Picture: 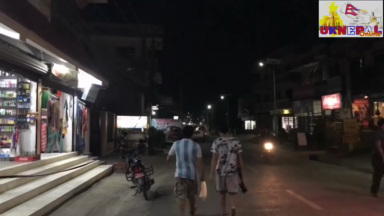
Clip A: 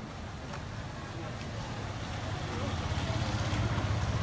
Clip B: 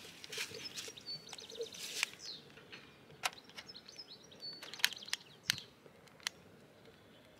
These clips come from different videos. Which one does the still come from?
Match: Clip A